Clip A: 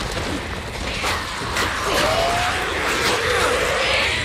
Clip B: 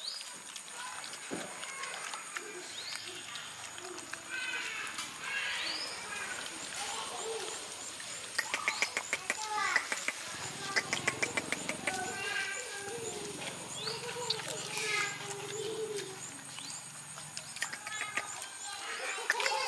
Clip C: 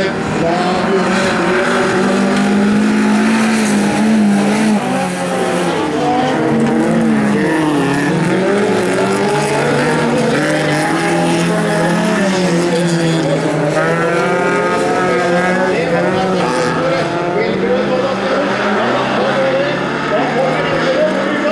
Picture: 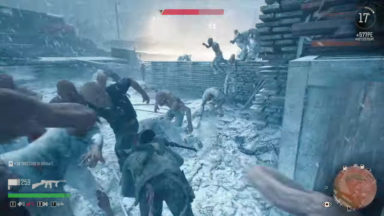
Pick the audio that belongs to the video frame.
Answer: A